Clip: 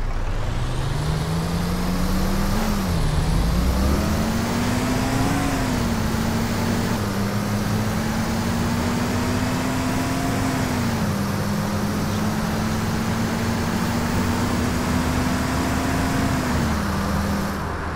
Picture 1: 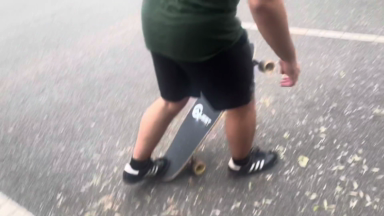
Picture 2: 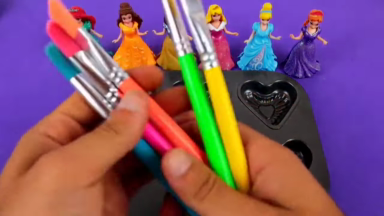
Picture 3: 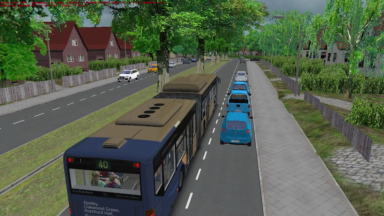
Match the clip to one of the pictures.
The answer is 3